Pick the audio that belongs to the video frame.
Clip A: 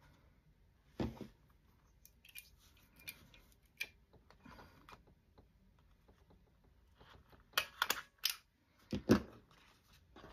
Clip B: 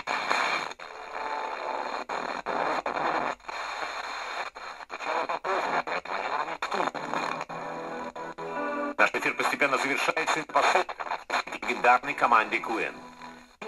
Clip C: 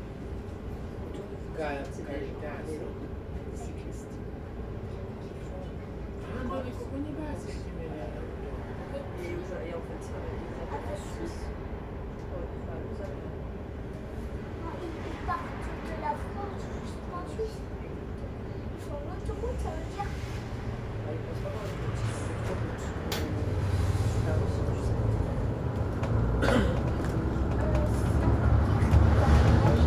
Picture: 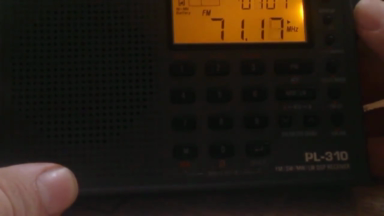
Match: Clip B